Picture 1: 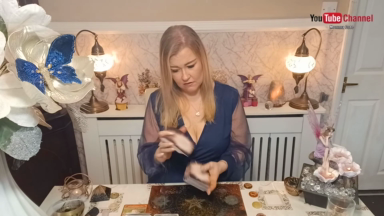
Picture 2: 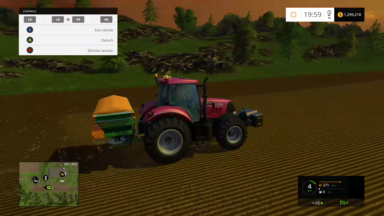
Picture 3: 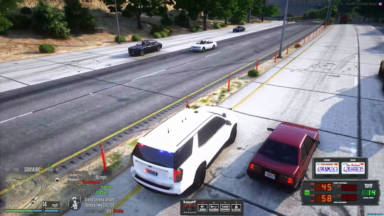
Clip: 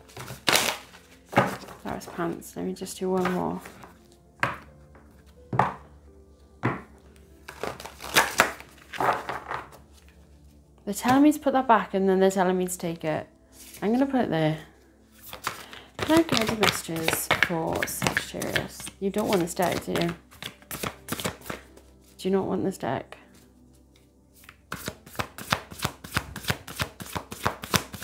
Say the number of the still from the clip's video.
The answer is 1